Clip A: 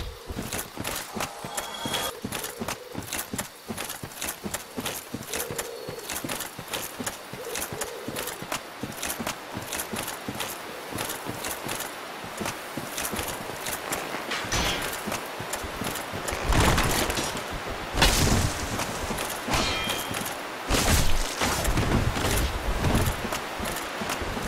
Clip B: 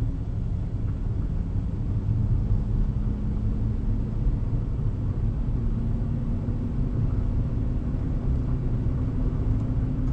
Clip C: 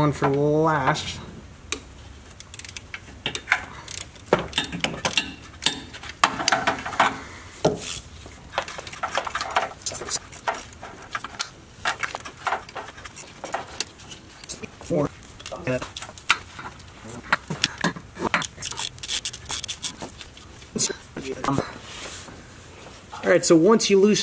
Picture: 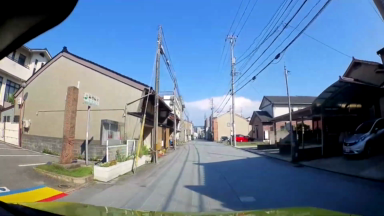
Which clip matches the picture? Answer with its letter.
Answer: B